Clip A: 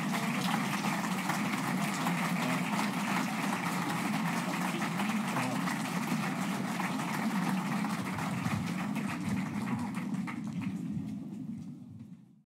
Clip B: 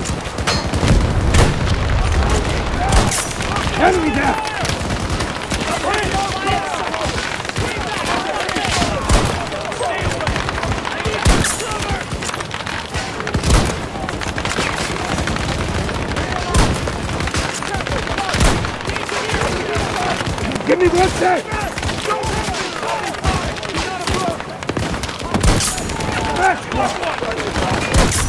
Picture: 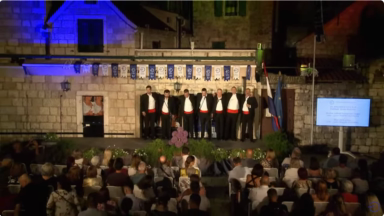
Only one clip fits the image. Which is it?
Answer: A